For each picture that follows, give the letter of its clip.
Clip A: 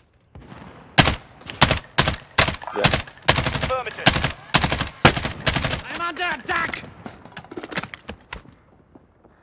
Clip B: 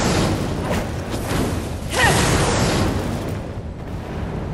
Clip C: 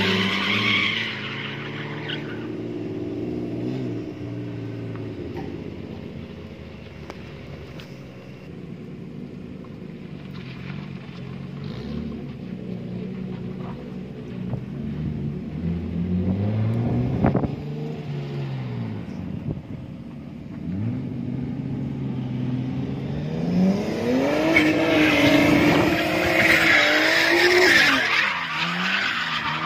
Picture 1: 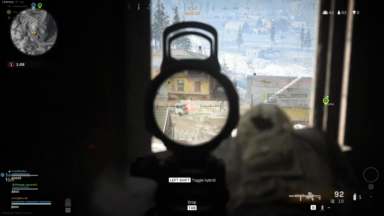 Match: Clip A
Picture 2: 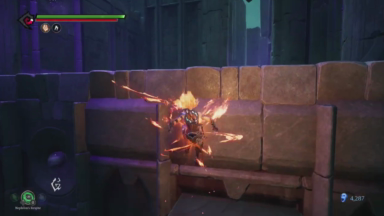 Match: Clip B